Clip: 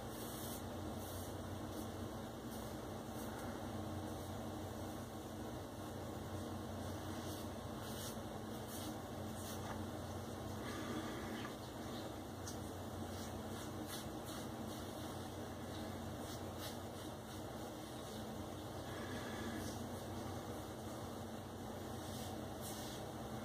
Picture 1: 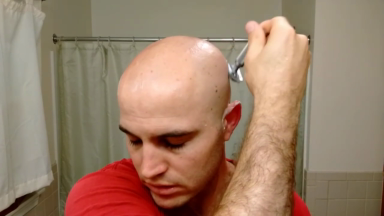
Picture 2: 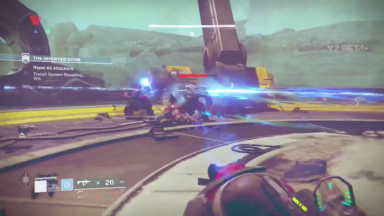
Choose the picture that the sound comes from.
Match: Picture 1